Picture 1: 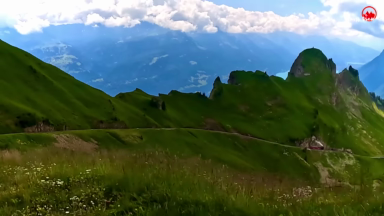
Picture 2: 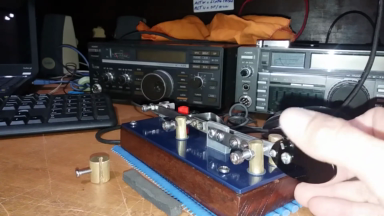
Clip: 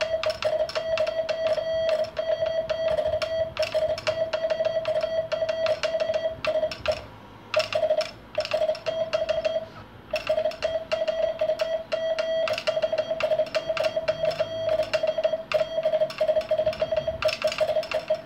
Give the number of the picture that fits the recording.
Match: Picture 2